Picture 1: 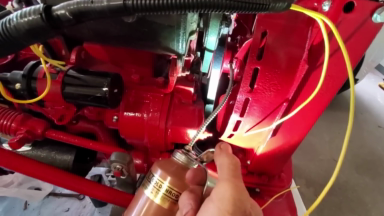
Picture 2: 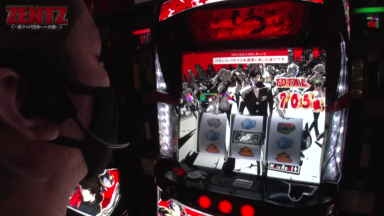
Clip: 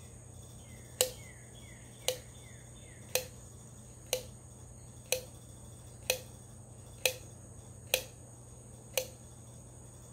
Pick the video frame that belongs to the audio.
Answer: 1